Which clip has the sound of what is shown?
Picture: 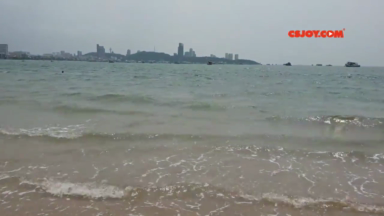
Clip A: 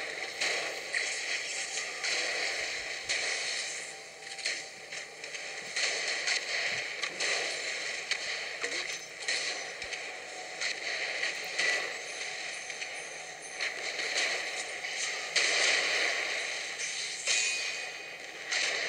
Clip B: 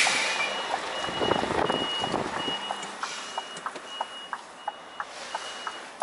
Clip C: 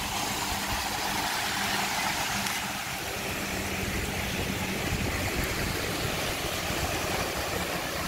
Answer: C